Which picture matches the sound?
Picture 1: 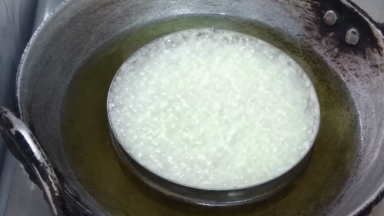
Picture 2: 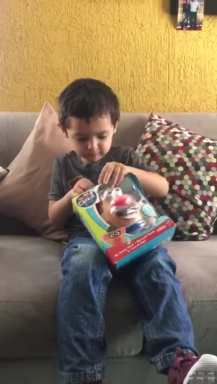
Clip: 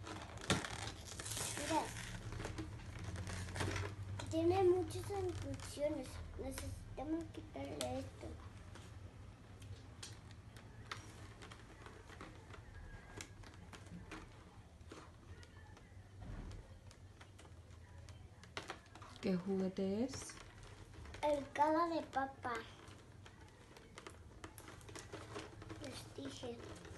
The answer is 2